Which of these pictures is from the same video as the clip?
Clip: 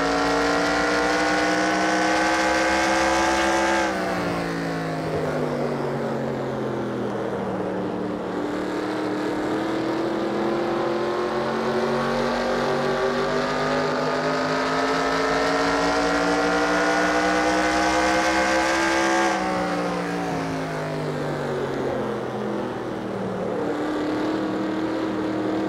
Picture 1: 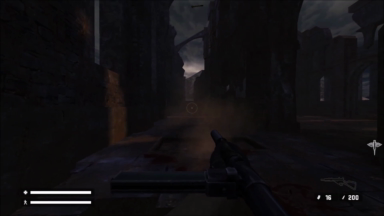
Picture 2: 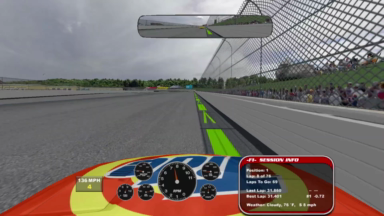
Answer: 2